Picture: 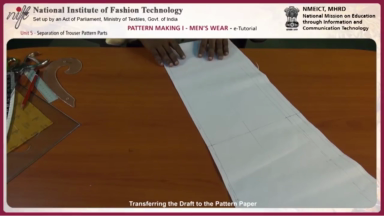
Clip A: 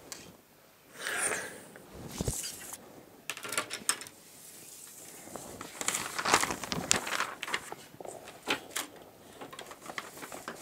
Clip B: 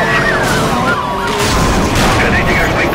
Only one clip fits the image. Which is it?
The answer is A